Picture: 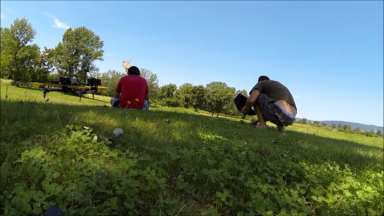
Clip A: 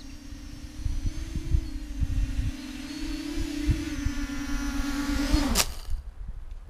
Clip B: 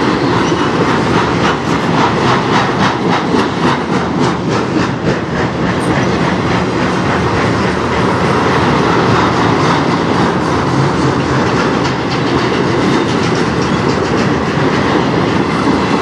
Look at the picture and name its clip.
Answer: A